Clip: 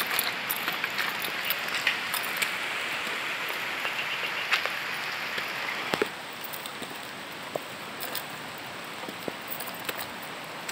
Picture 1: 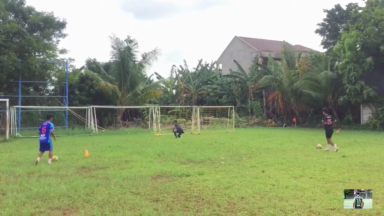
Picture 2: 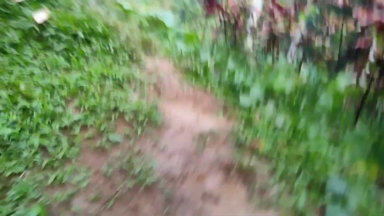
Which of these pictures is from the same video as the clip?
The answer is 2